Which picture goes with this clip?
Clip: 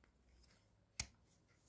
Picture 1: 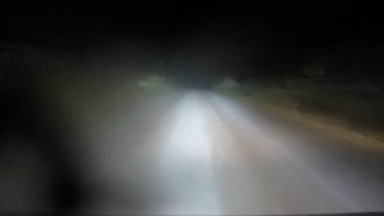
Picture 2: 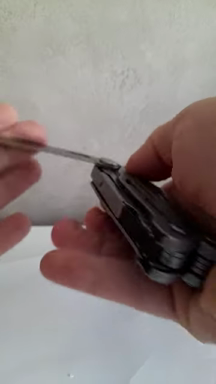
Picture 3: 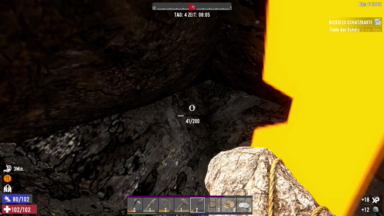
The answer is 2